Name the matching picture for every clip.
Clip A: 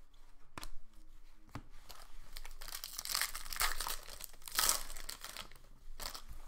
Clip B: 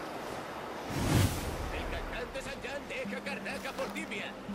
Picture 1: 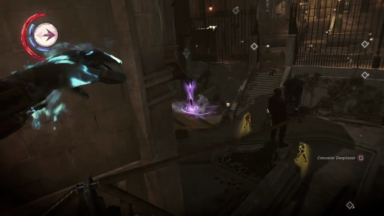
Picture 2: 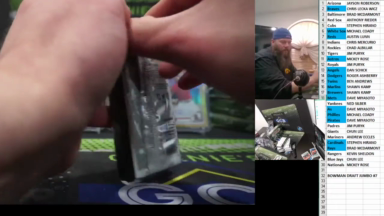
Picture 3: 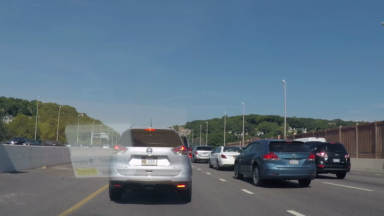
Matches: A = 2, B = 1